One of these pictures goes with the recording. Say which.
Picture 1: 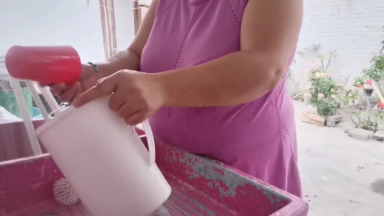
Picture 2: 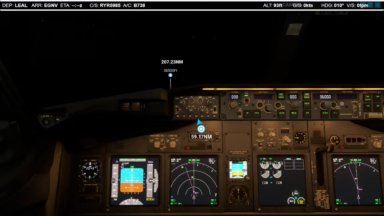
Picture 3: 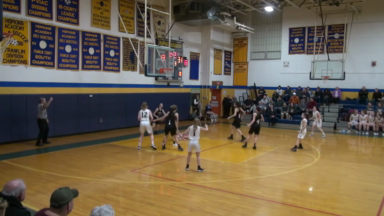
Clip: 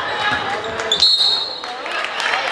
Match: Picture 3